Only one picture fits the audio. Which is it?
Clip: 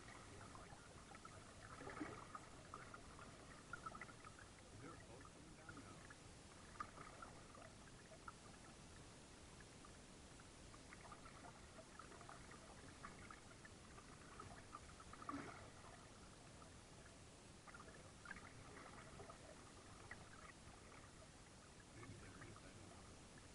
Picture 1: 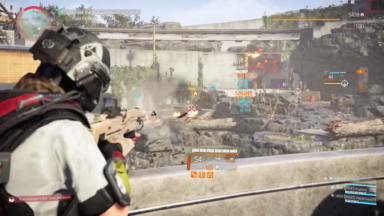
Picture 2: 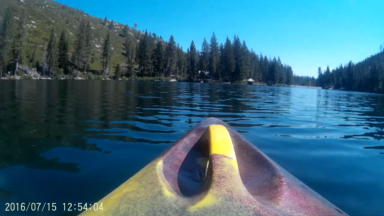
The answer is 2